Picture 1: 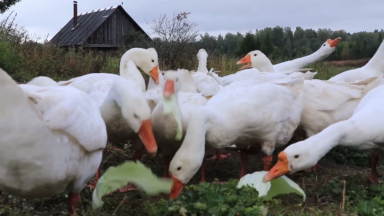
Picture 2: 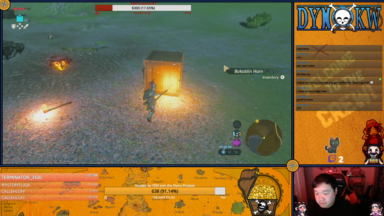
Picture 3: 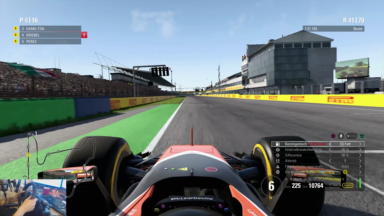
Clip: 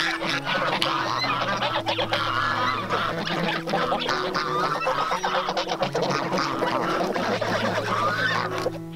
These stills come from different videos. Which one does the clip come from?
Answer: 1